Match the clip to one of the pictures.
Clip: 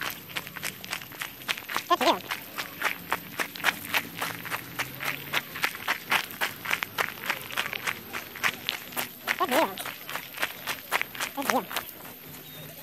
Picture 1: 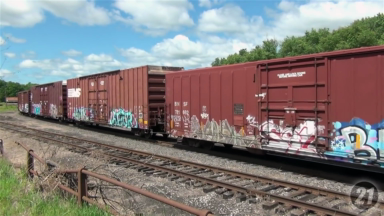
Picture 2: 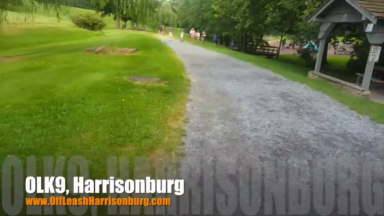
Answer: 2